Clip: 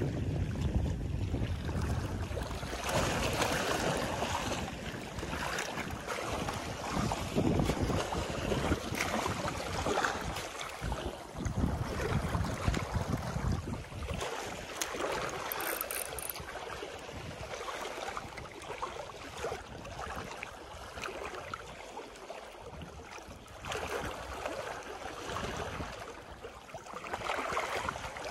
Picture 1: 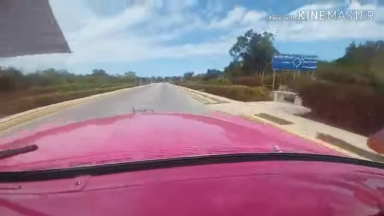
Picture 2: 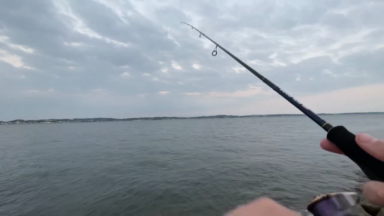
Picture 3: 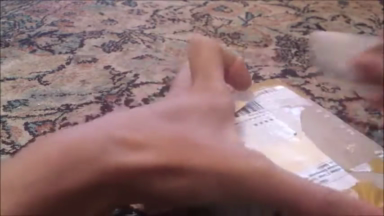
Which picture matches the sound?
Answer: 2